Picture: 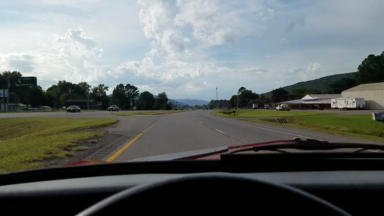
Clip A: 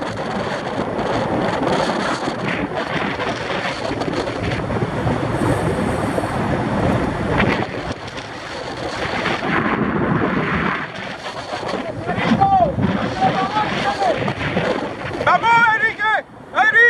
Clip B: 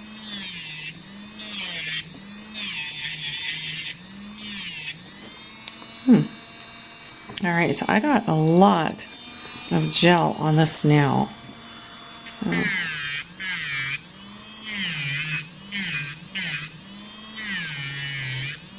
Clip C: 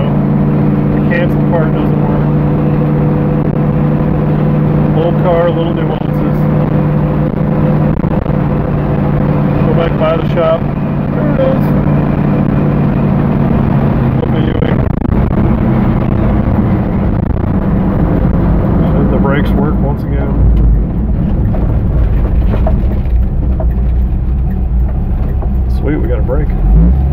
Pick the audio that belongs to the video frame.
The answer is C